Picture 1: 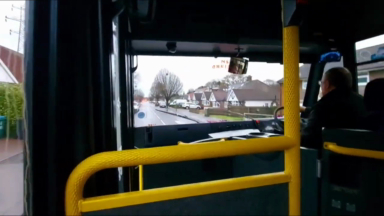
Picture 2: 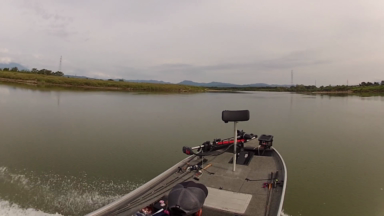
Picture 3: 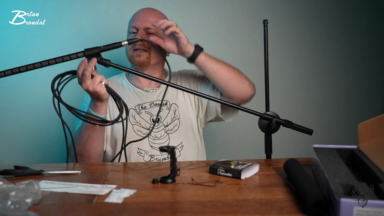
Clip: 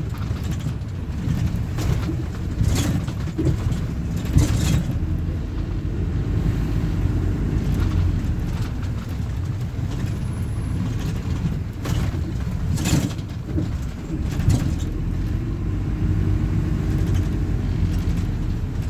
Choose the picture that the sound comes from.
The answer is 1